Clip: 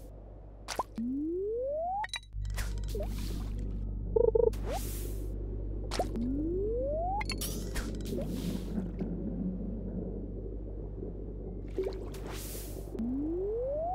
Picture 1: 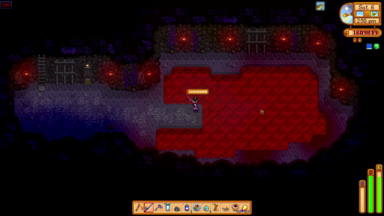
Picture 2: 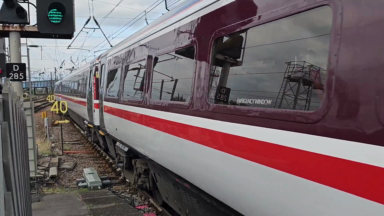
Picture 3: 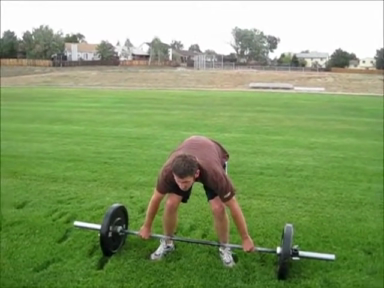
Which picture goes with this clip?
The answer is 1